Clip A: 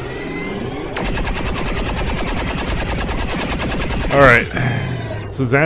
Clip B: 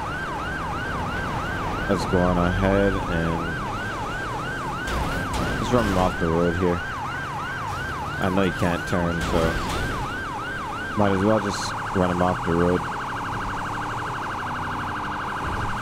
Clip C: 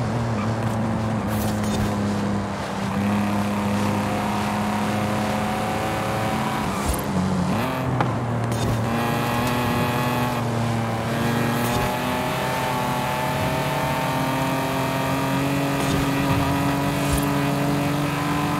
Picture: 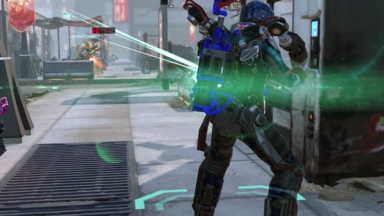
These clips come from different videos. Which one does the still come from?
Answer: A